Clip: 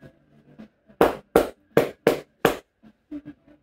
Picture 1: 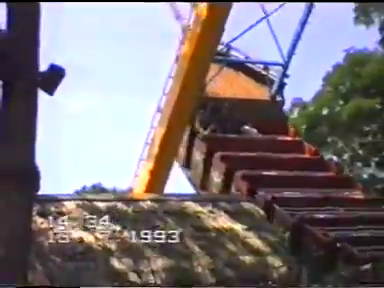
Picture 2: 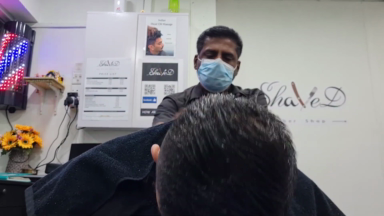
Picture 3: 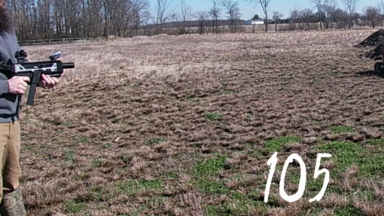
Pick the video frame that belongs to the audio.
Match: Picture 2